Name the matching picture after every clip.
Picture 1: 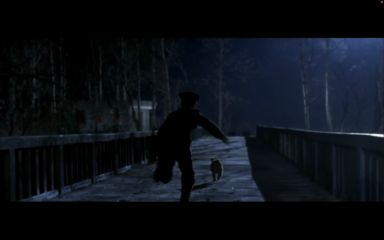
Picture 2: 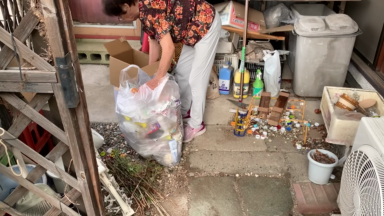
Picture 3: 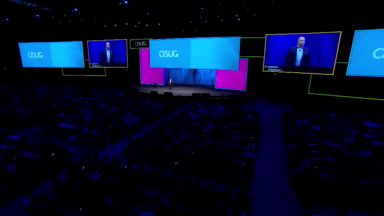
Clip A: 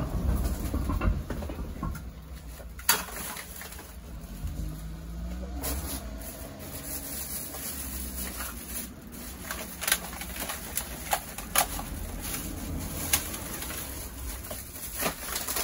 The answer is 2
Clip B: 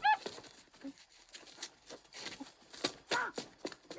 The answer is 1